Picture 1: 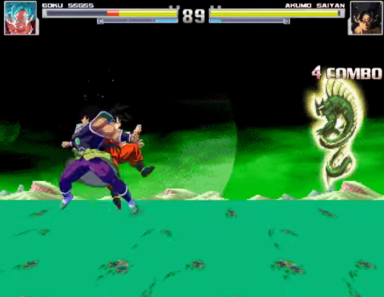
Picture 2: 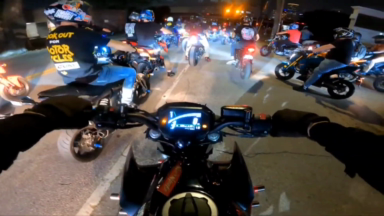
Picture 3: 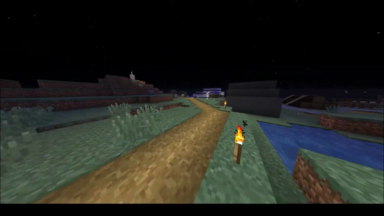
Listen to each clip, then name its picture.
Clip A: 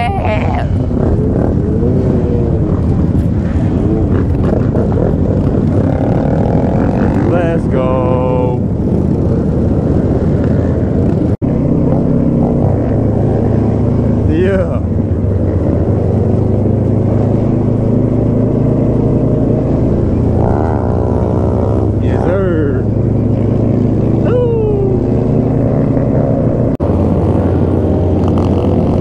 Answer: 2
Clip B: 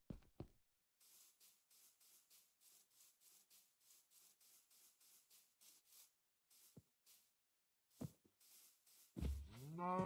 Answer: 3